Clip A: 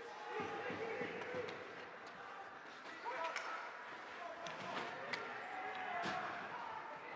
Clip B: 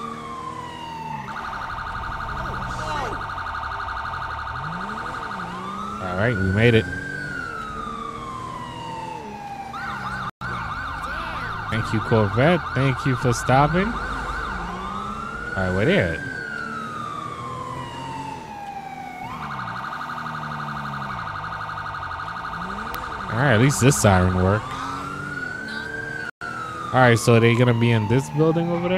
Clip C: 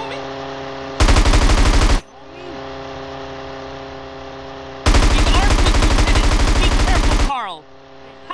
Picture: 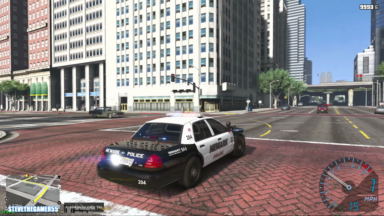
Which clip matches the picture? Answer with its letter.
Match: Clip B